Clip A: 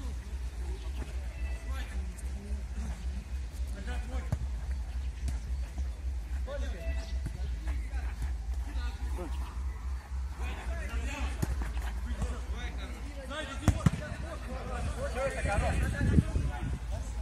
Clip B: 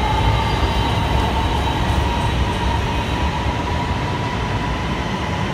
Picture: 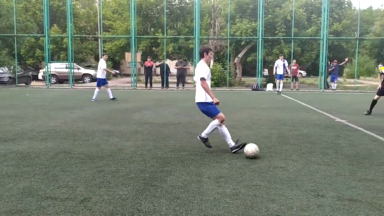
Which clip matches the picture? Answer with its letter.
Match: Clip A